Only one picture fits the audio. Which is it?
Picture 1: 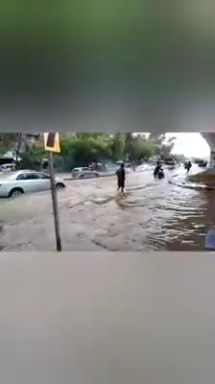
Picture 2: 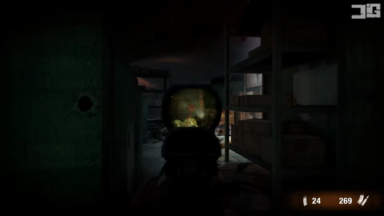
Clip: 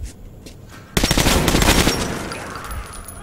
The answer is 2